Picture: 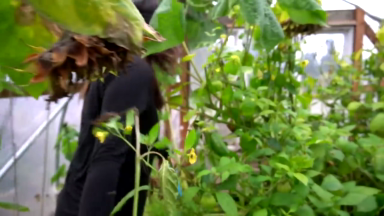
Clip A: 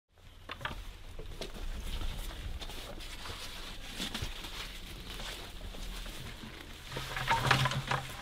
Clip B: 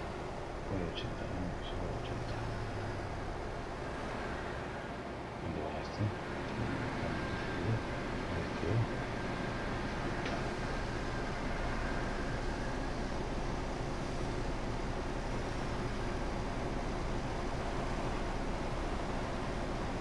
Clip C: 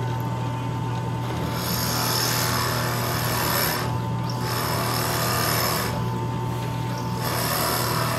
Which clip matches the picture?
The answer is A